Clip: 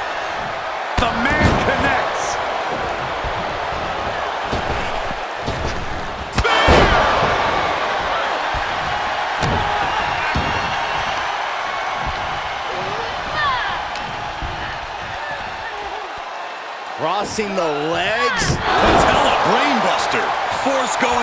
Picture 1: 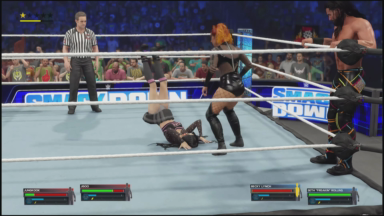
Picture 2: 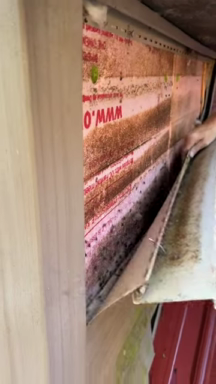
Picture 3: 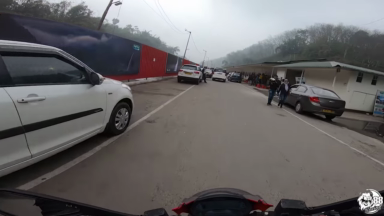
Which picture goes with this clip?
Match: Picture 1